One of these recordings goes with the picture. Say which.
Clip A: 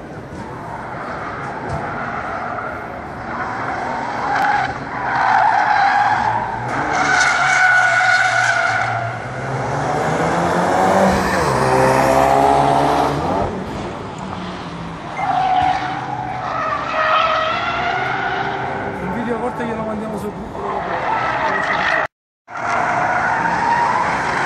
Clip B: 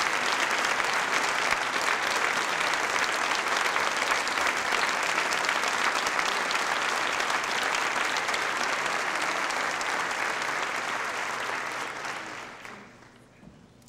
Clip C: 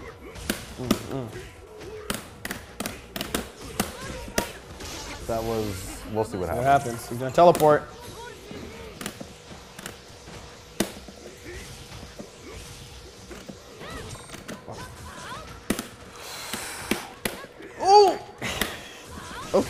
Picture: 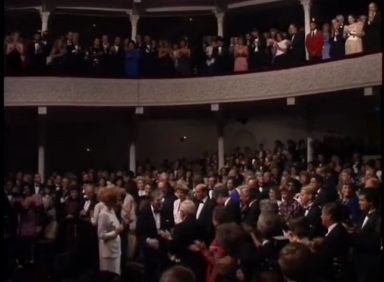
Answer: B